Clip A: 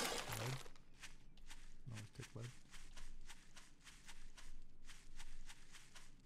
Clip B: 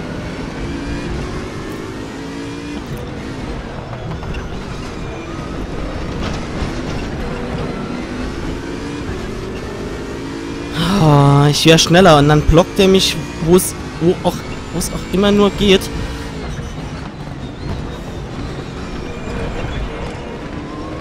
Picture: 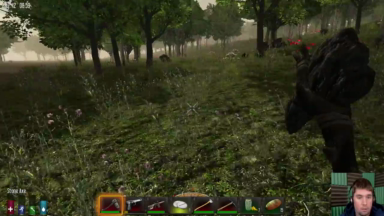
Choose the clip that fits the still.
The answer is A